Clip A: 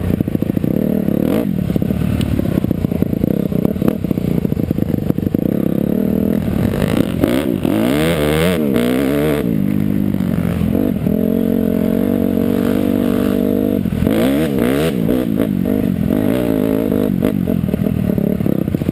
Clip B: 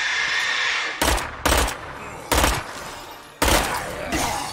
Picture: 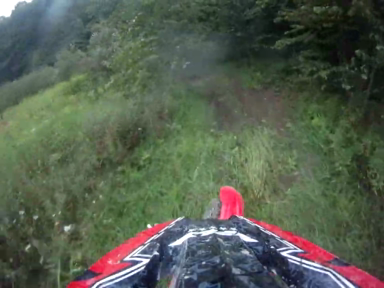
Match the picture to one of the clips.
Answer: A